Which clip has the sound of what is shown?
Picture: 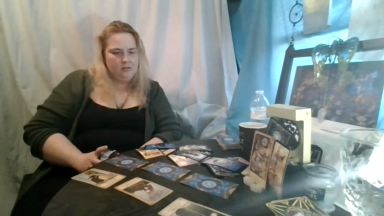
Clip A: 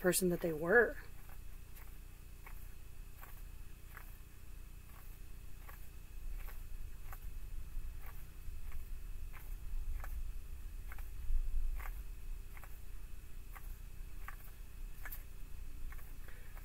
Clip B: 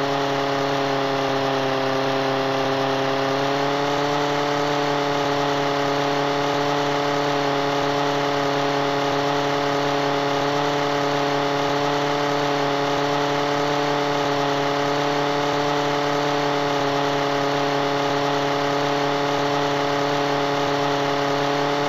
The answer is A